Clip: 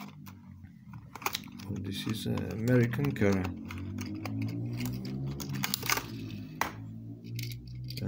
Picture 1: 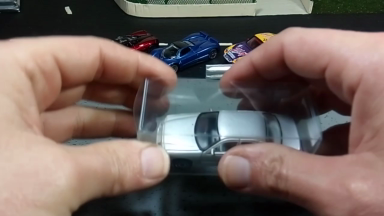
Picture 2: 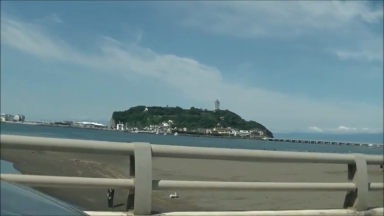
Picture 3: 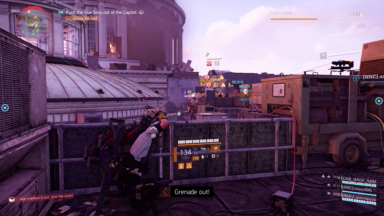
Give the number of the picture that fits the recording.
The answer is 1